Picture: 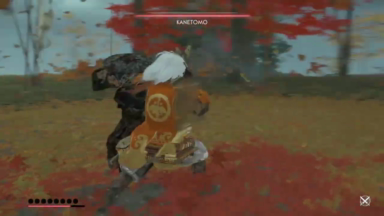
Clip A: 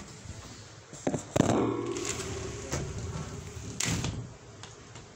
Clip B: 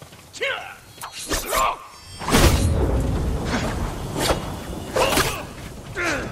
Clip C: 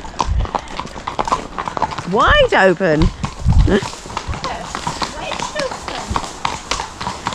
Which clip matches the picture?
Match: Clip B